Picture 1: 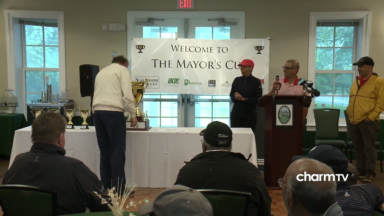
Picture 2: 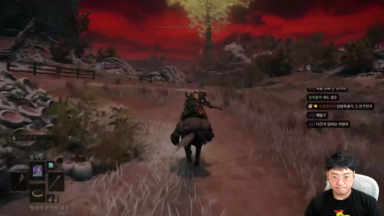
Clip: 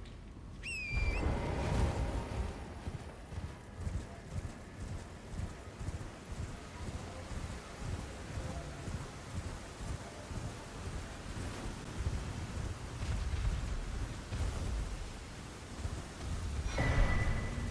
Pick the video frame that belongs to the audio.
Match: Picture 2